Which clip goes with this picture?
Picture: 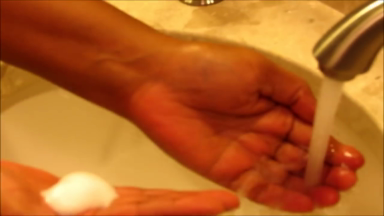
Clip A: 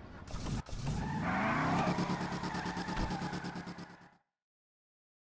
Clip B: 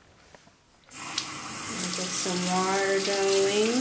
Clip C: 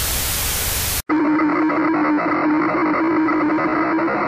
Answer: B